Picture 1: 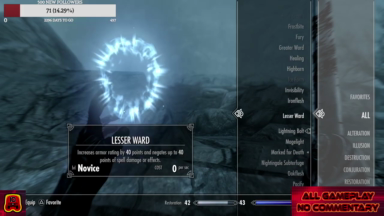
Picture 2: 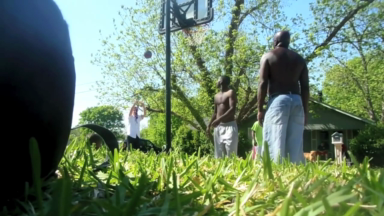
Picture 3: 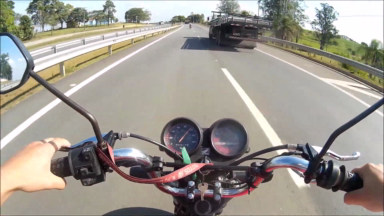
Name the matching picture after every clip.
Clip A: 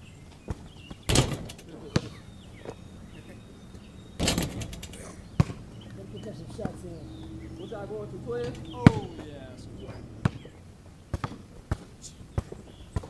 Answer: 2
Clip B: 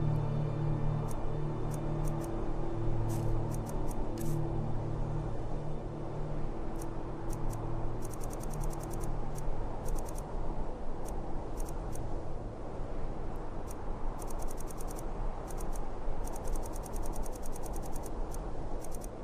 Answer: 1